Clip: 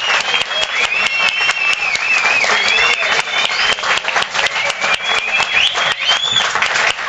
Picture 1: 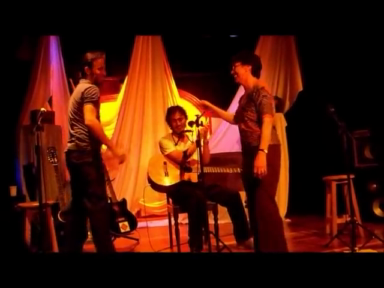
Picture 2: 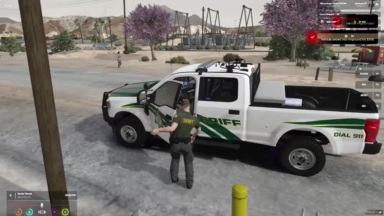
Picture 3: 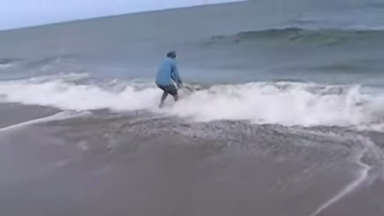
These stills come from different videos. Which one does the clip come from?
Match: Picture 1